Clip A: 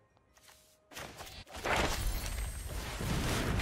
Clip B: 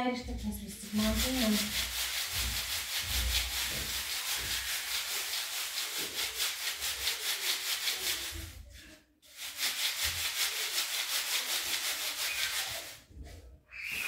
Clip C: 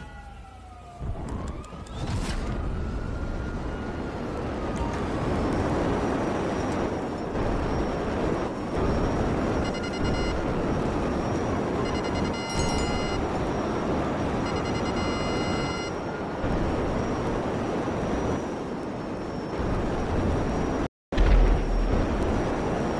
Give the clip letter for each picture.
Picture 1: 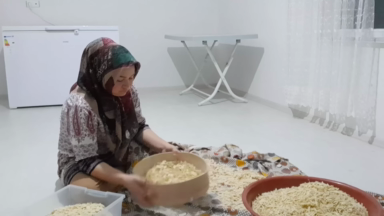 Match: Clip B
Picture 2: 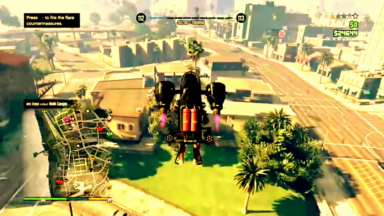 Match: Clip C